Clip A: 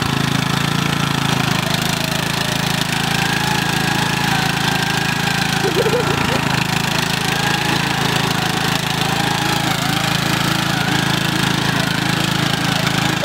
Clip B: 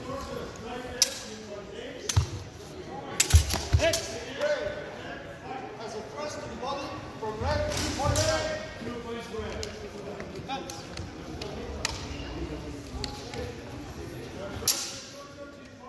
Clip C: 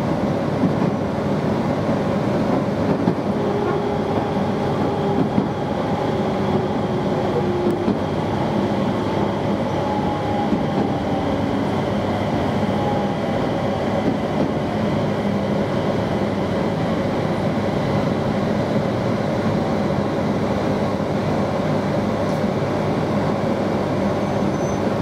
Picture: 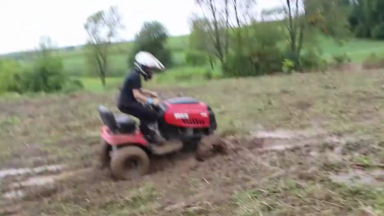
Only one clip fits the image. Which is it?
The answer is A